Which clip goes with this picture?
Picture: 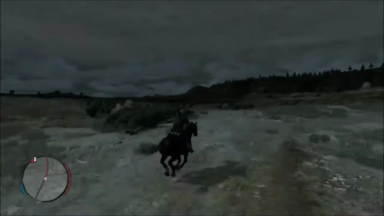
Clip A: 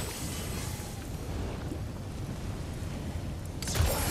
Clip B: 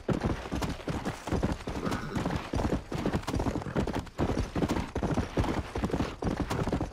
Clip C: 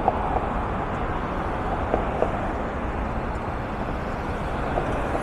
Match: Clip B